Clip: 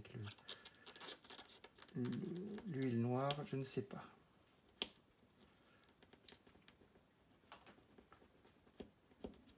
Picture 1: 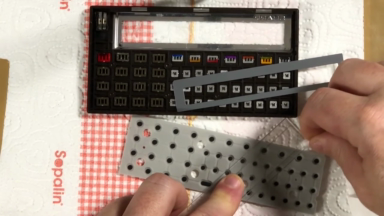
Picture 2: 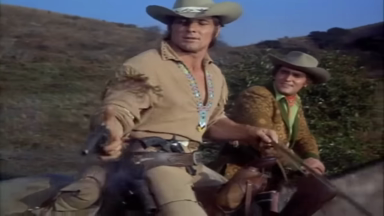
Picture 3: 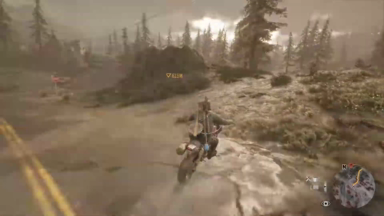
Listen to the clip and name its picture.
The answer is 1